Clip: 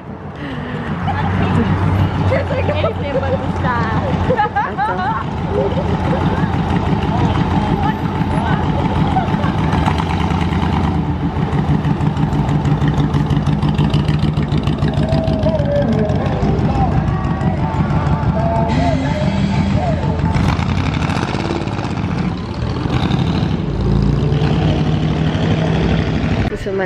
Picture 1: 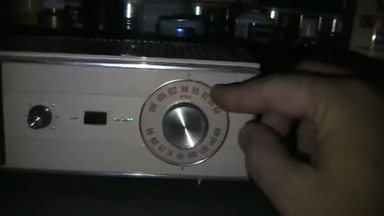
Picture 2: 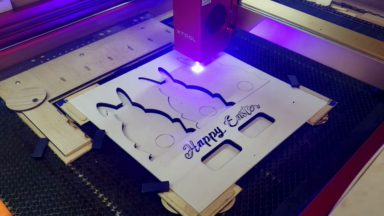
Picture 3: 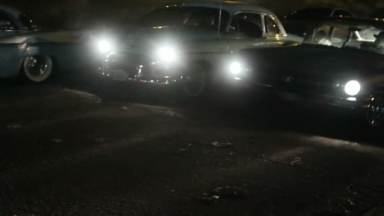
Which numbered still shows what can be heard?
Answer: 3